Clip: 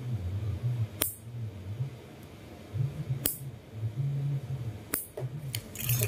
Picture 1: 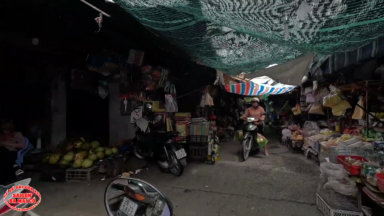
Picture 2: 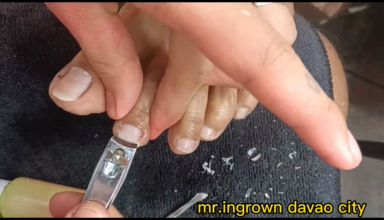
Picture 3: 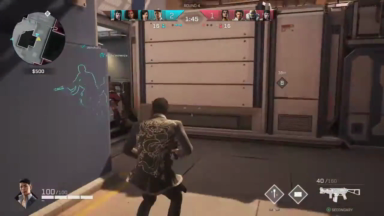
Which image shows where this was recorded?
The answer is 2